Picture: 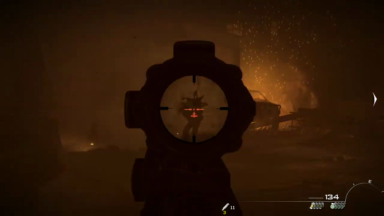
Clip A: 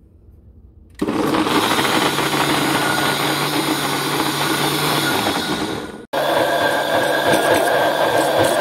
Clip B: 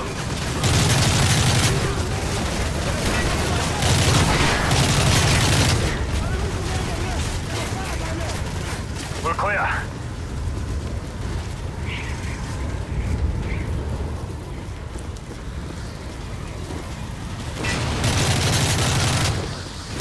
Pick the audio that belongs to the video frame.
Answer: B